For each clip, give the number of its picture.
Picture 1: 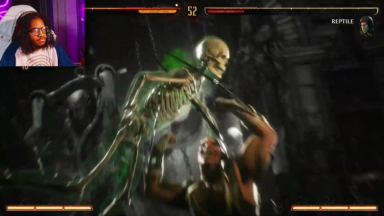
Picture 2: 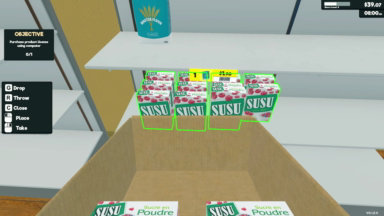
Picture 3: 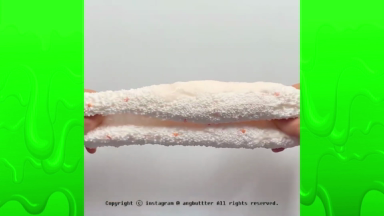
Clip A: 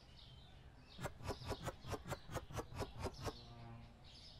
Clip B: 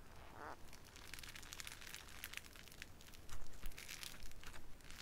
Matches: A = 2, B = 3